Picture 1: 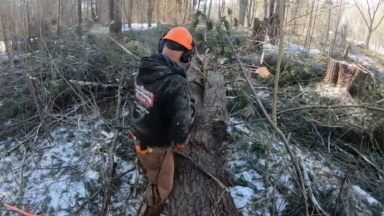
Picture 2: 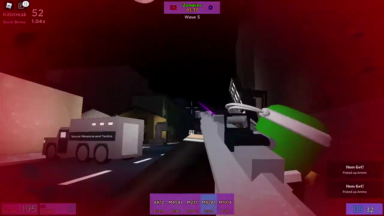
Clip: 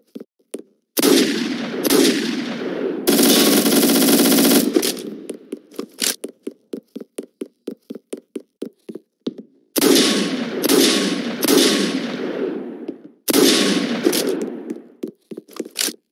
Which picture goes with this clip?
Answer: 2